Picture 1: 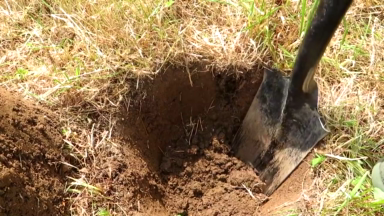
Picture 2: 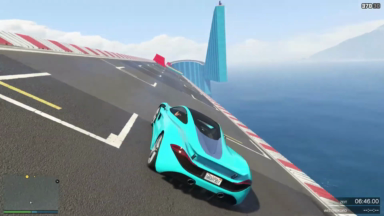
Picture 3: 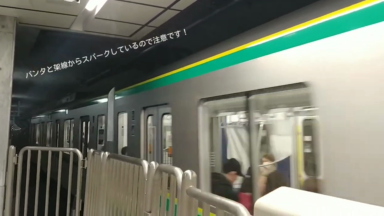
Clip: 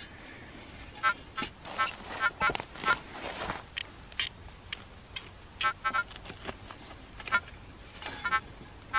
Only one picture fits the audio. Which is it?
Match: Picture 1